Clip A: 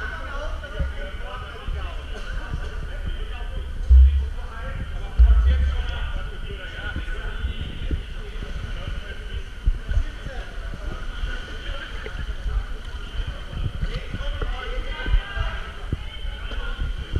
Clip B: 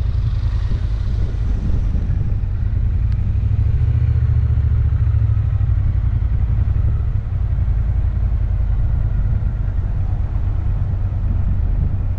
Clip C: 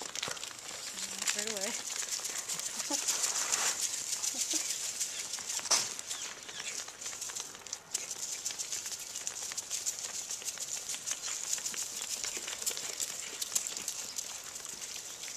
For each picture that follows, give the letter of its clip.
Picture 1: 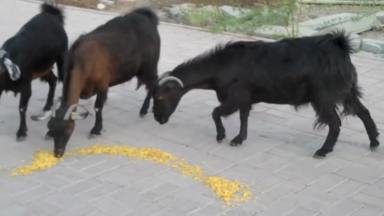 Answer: C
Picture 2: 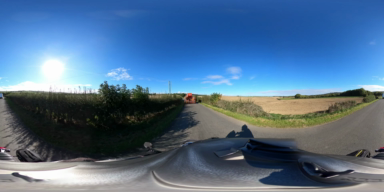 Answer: B